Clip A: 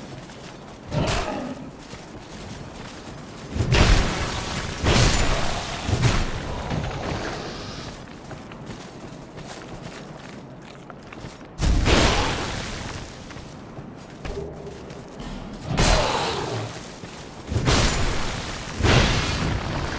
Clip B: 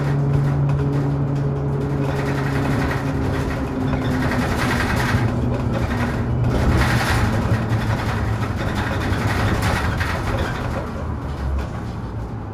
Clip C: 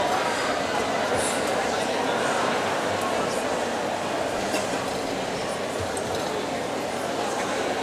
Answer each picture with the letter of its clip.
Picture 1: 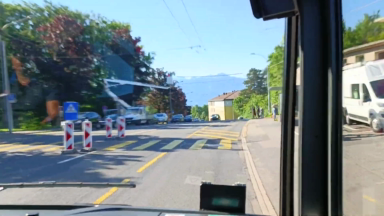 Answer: B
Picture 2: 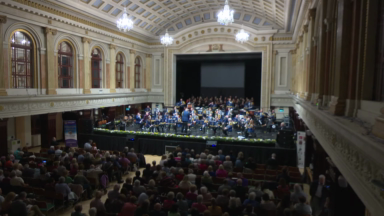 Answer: C